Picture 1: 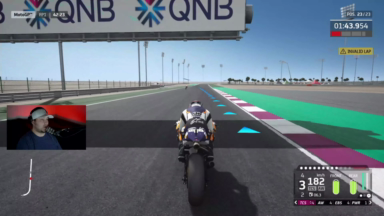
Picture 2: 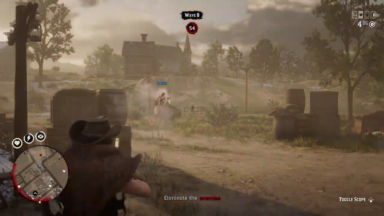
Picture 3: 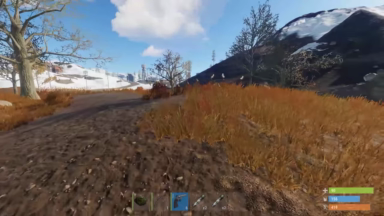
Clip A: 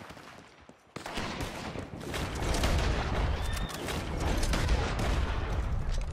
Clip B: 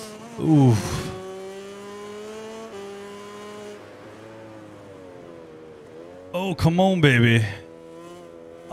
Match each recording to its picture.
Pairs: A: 2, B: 1